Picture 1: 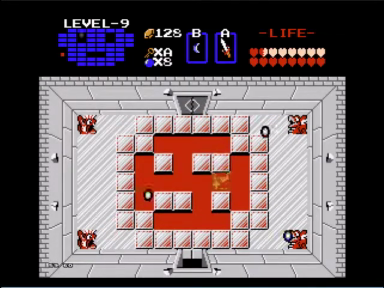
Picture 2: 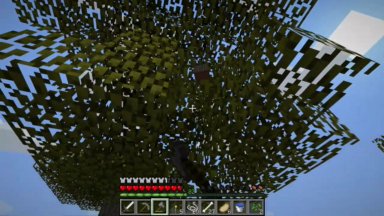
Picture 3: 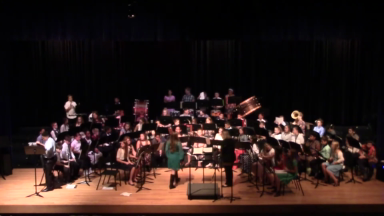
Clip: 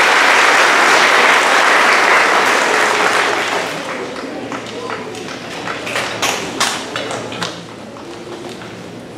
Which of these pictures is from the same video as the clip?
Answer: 3